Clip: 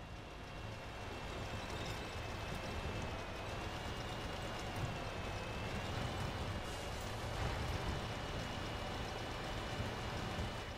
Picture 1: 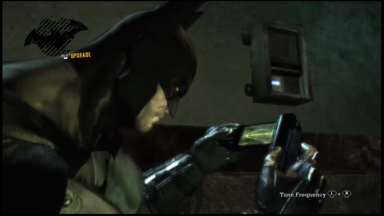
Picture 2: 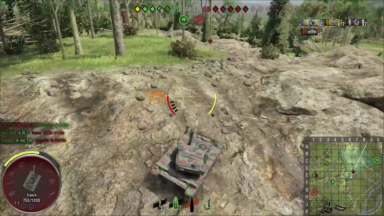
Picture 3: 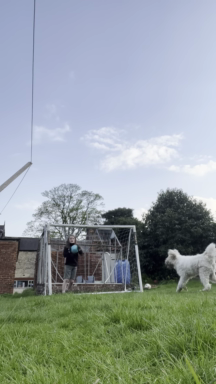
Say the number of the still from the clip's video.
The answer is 2